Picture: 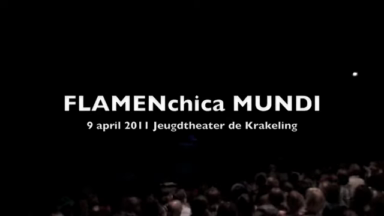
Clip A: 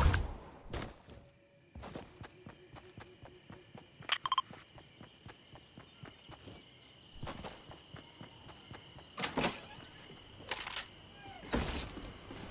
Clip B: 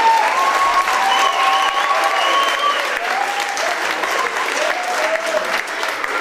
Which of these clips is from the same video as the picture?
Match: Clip B